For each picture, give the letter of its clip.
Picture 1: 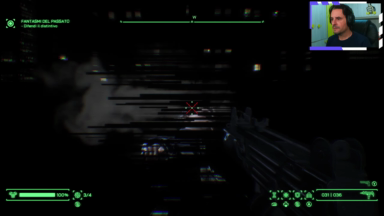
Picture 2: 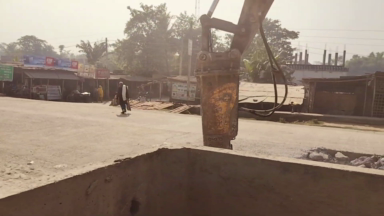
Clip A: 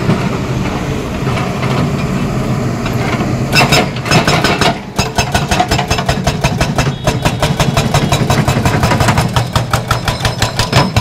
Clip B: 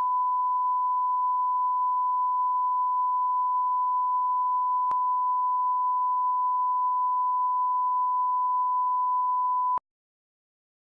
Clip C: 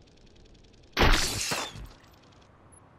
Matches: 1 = C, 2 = A